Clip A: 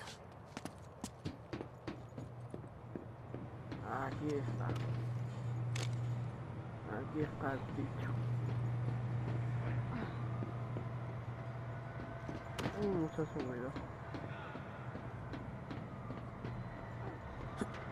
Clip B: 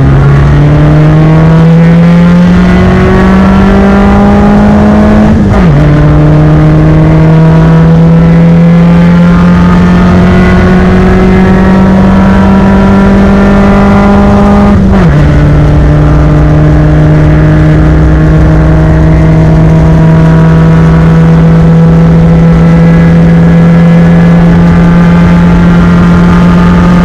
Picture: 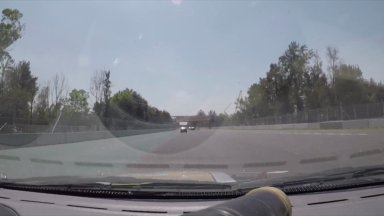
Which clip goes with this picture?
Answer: B